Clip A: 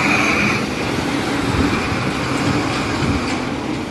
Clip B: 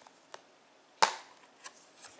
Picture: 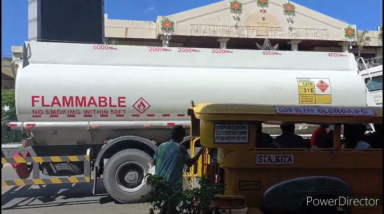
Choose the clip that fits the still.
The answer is A